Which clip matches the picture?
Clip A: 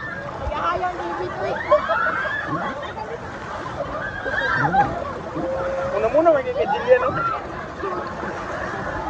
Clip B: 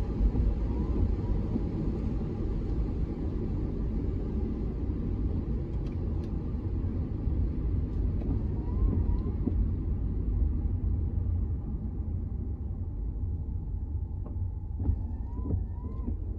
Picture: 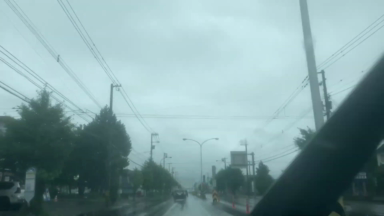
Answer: B